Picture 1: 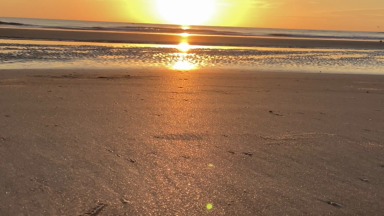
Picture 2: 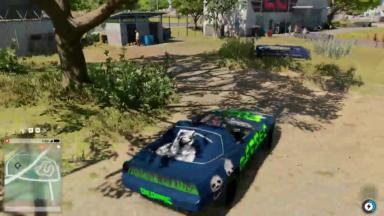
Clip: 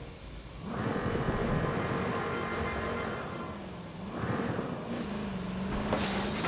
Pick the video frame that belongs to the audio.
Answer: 2